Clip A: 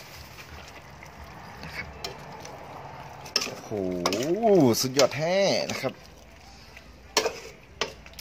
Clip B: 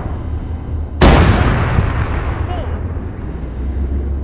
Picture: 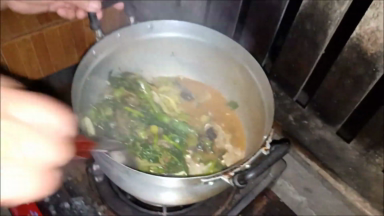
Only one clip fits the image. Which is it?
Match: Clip A